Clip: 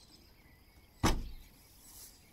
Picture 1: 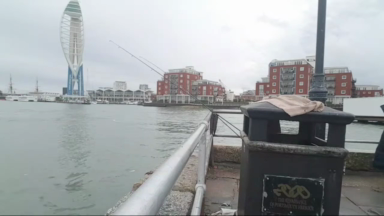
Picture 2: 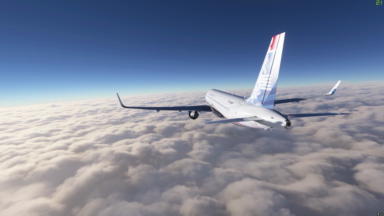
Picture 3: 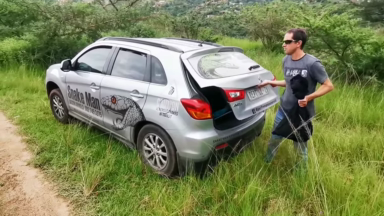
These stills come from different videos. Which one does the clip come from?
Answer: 3